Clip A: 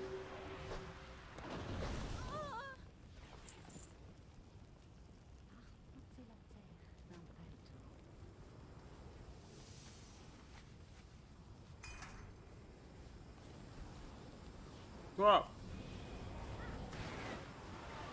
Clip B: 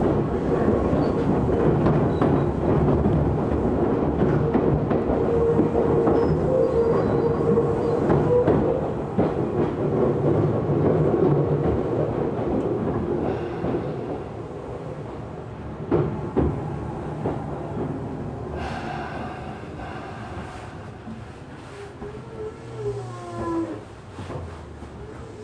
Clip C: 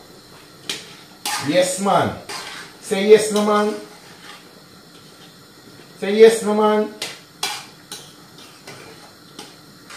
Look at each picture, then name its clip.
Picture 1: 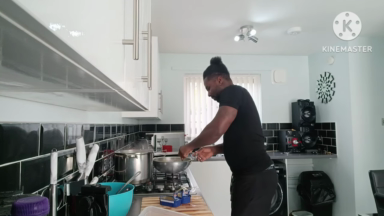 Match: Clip C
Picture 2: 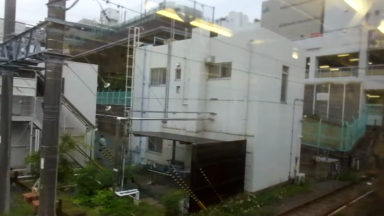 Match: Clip B